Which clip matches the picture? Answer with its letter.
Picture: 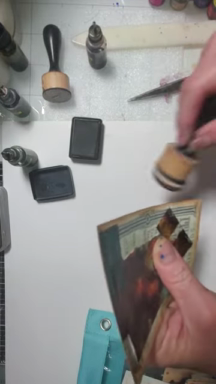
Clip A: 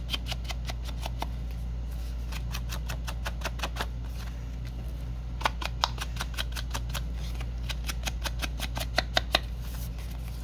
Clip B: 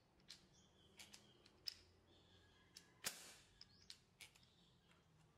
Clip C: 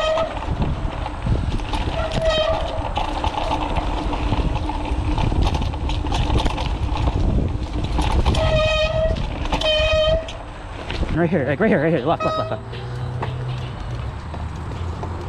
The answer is A